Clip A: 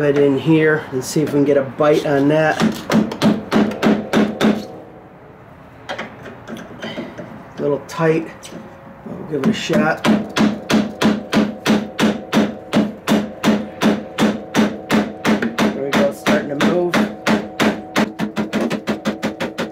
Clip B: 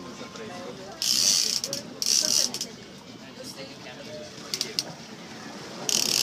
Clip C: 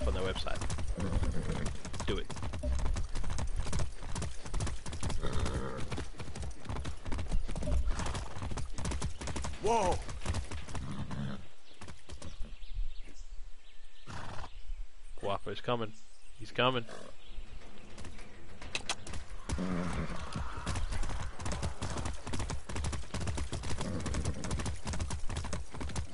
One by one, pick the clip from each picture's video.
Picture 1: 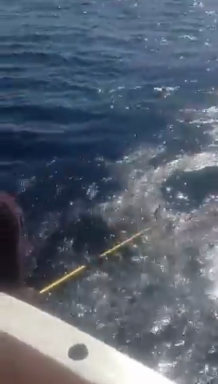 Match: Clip B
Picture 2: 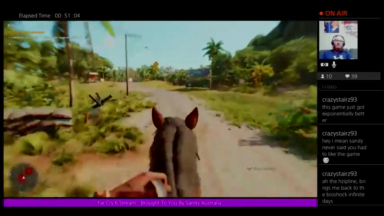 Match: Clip C